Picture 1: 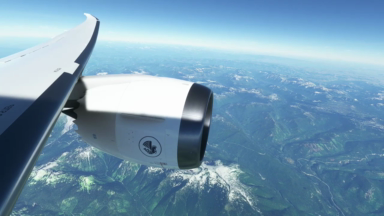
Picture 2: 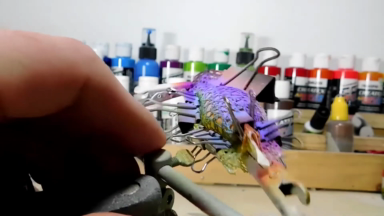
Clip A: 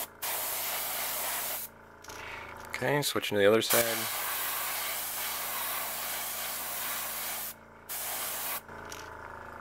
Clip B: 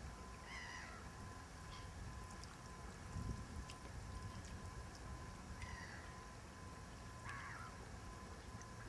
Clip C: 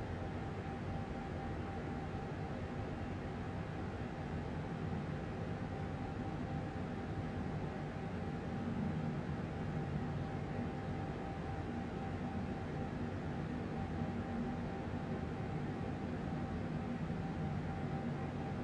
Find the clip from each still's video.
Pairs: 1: C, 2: A